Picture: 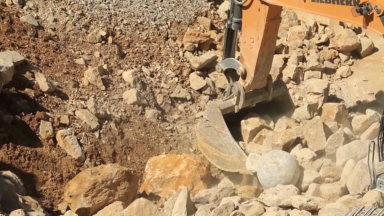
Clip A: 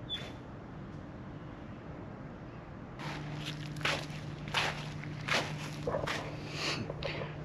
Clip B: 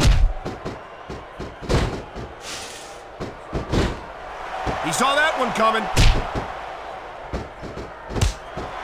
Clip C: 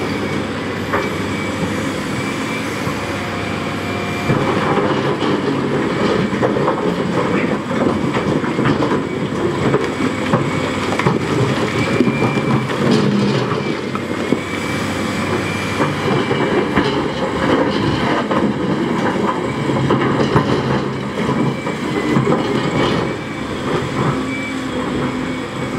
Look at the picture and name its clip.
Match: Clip C